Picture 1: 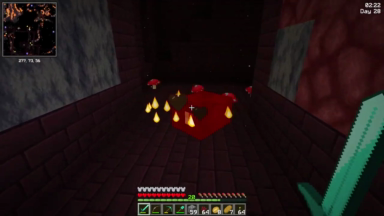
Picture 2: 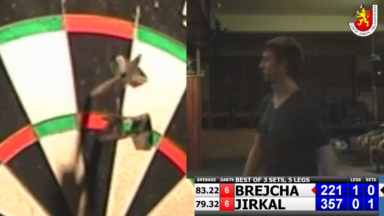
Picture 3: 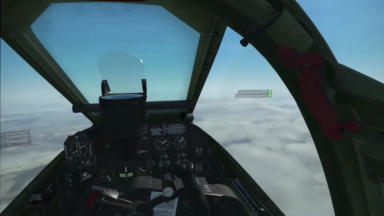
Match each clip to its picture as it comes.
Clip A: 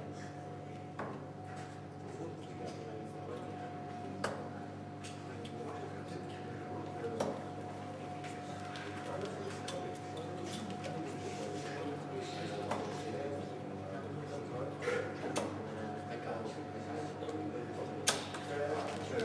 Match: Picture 2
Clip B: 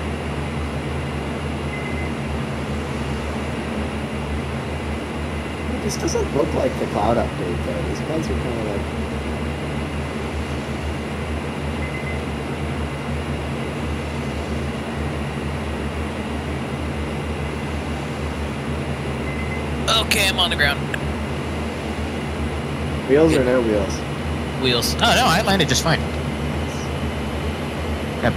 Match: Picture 3